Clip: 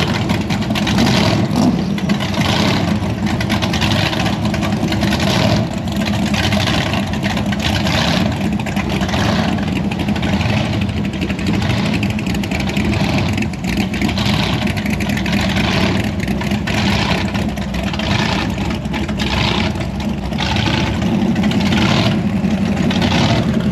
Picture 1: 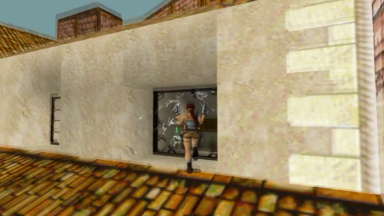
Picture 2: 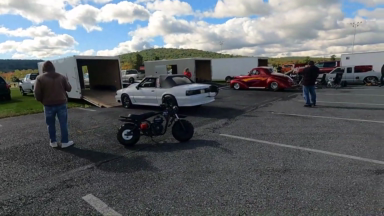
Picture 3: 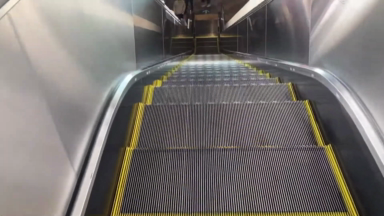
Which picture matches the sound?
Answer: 2